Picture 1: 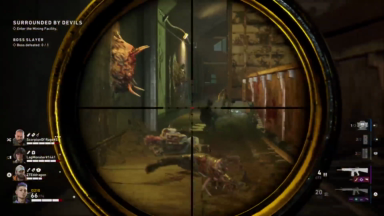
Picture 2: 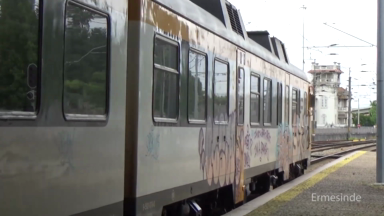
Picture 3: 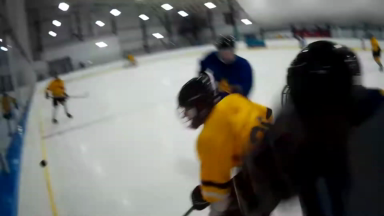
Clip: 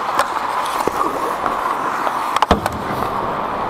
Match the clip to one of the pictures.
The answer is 3